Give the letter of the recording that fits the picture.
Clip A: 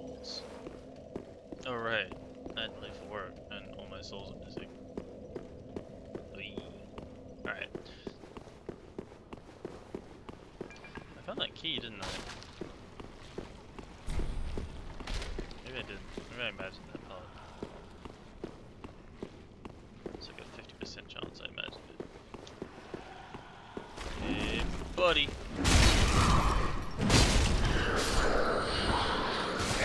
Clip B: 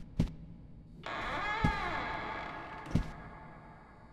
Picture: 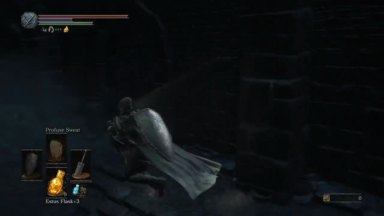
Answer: A